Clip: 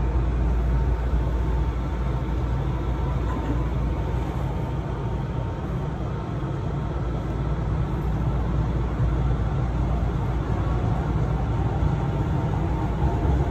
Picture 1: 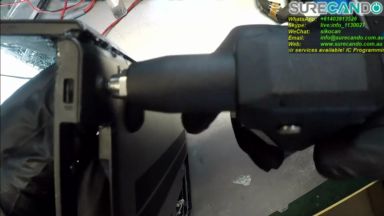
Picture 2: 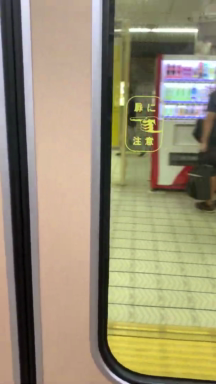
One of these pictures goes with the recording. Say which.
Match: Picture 2